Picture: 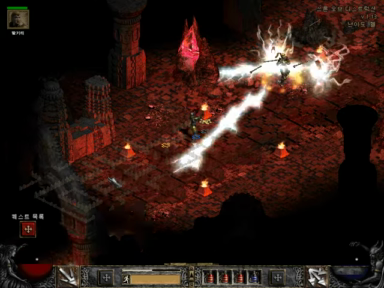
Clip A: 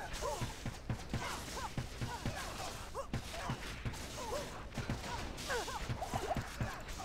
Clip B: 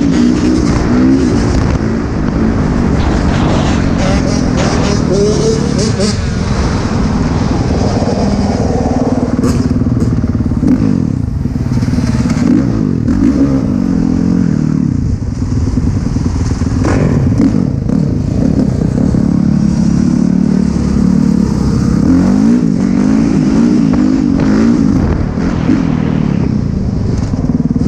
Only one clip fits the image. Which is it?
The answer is A